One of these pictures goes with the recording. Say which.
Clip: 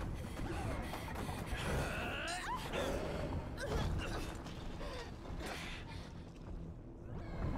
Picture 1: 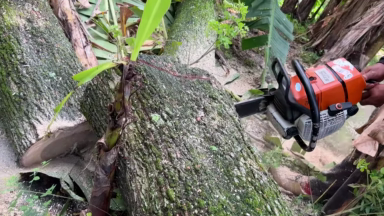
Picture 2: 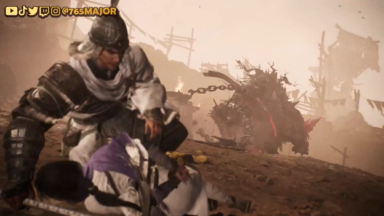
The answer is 2